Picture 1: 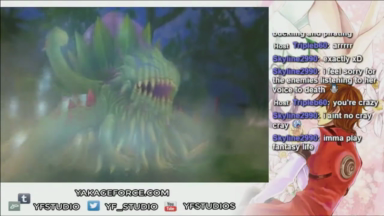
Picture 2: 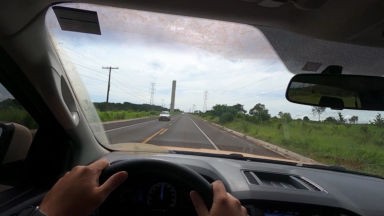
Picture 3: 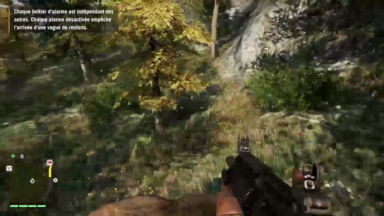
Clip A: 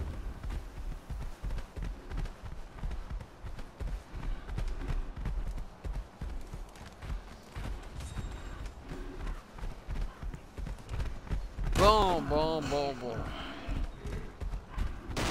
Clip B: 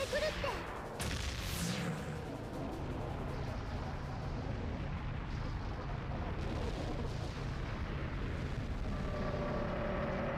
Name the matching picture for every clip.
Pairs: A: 3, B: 1